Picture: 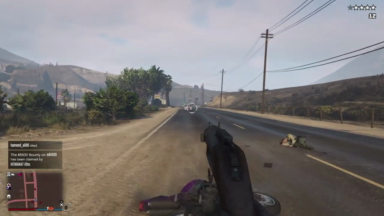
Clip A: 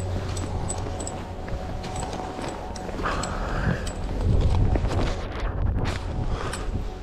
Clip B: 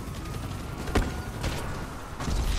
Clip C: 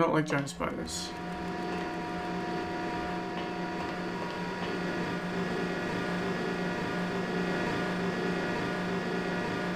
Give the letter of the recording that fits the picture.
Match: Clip B